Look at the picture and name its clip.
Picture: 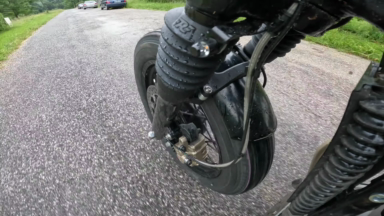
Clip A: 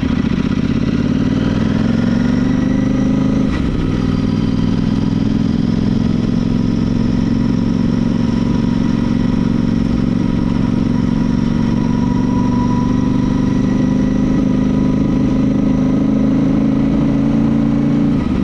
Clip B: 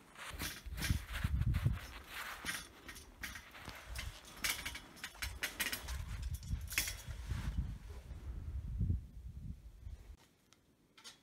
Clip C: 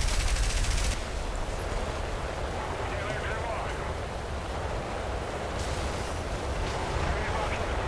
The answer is A